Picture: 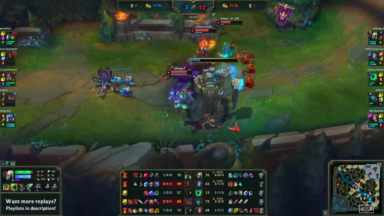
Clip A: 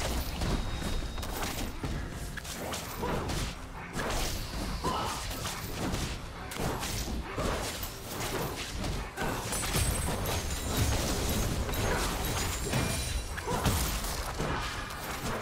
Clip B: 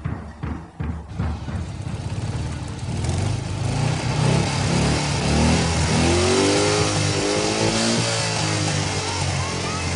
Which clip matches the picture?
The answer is A